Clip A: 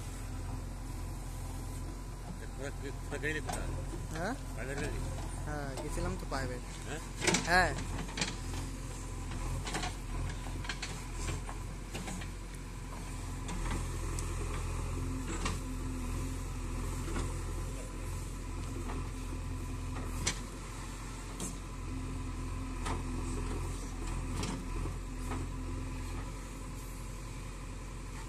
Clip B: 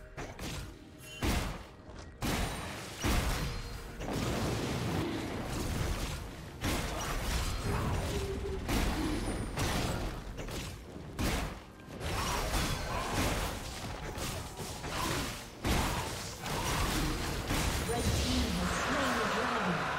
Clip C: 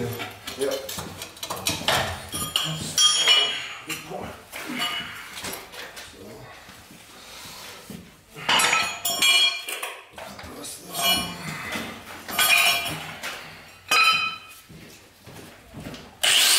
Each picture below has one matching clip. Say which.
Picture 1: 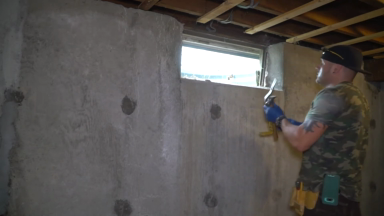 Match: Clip C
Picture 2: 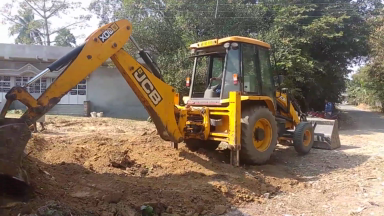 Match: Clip A